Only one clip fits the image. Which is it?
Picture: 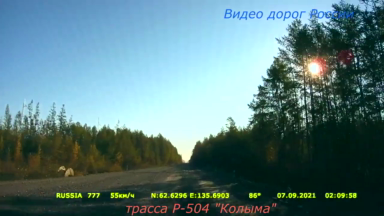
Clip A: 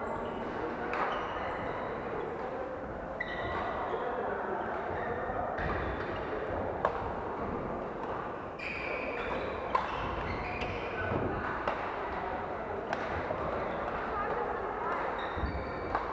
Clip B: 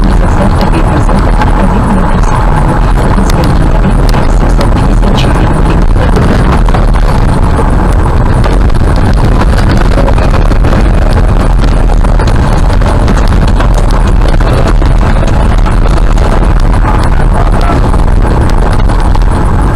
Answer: B